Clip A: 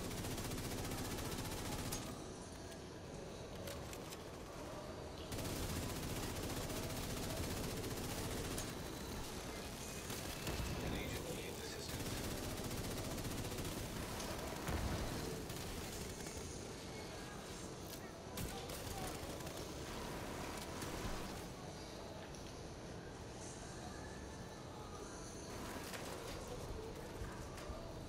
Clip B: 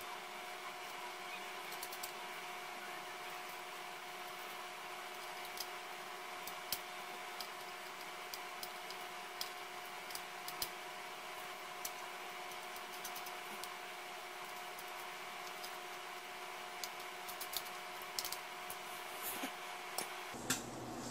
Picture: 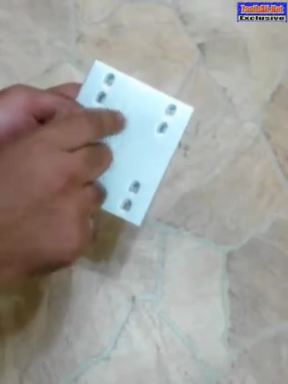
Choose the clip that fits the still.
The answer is B